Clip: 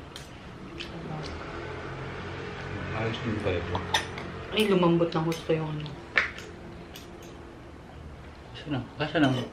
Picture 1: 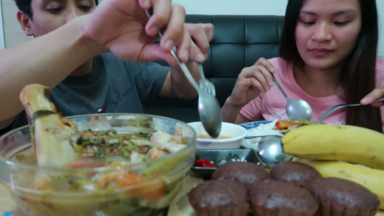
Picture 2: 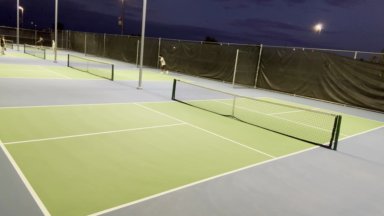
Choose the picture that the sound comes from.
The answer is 1